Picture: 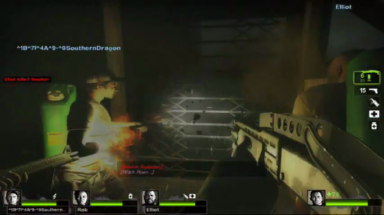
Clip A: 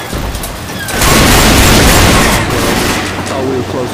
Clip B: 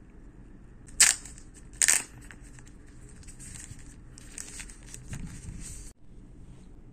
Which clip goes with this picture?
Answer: A